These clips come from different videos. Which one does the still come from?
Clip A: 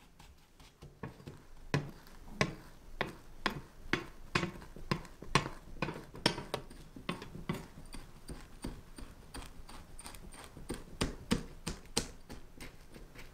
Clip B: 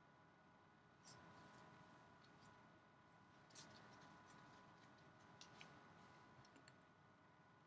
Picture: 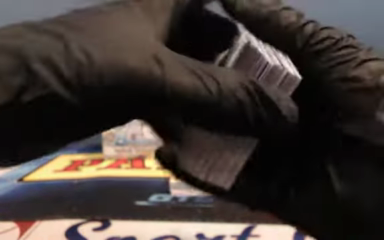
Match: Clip B